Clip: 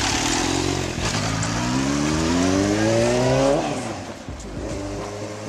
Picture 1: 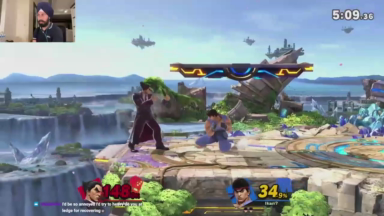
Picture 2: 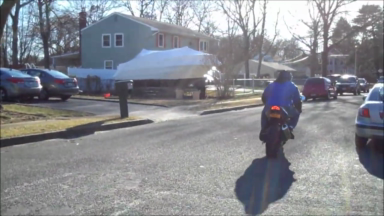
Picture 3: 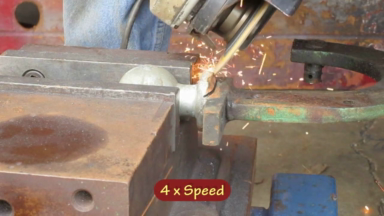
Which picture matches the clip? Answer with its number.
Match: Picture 2